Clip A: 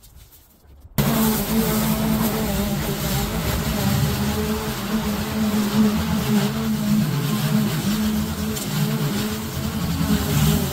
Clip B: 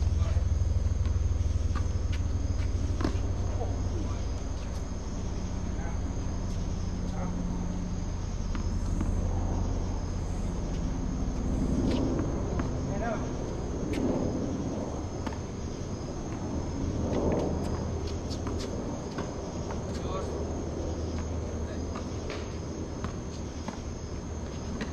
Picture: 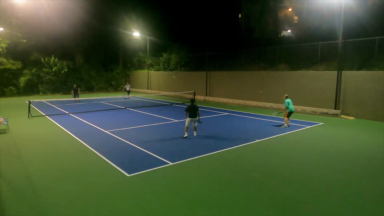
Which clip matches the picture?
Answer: B